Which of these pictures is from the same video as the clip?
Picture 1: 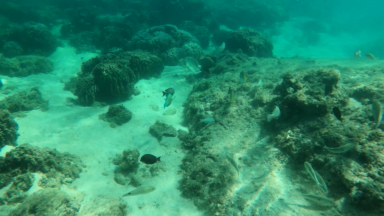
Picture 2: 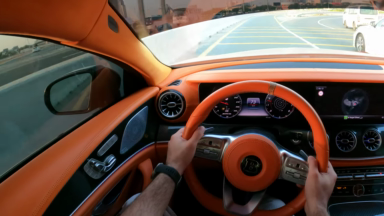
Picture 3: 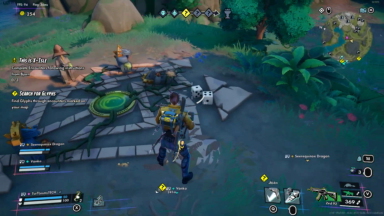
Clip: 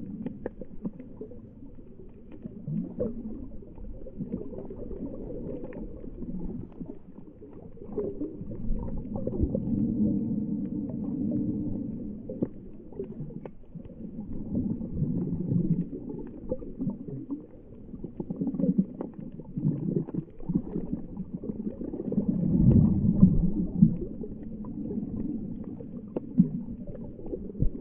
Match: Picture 1